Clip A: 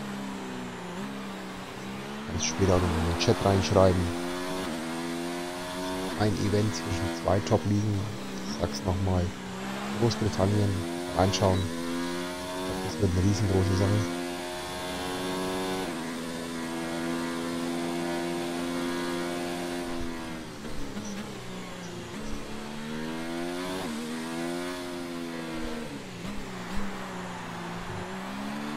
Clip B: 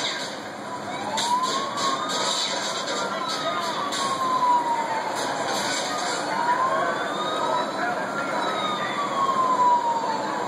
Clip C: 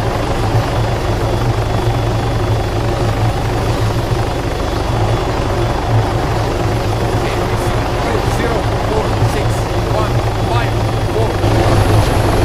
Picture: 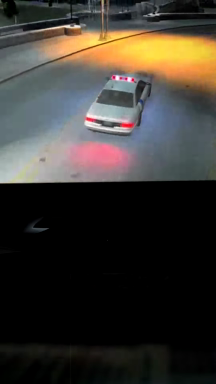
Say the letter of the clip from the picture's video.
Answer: B